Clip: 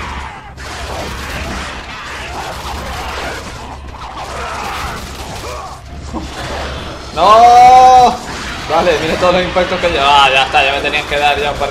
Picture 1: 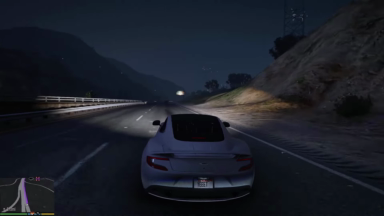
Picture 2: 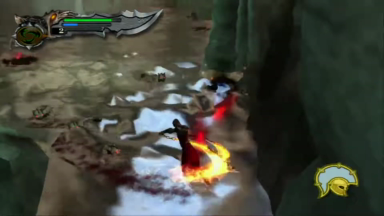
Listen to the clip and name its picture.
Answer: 2